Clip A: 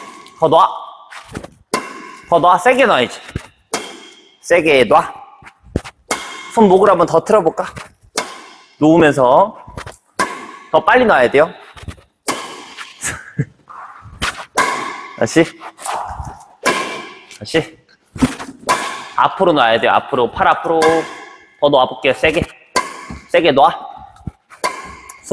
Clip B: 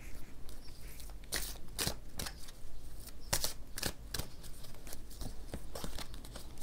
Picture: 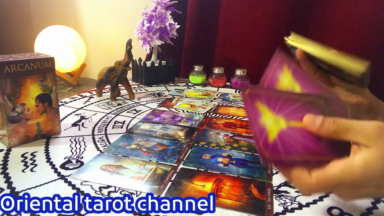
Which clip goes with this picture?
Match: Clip B